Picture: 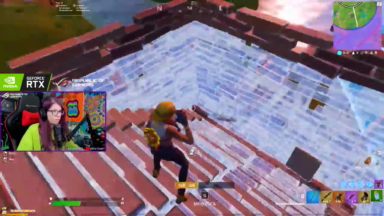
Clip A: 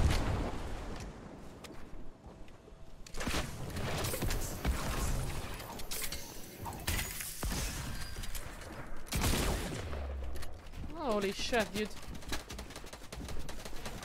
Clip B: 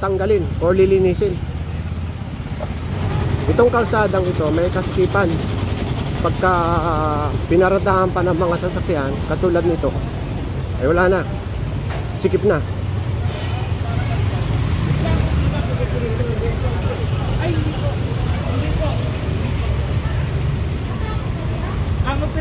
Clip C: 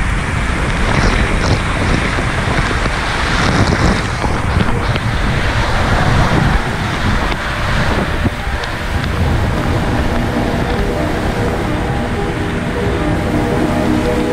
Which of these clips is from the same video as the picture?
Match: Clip A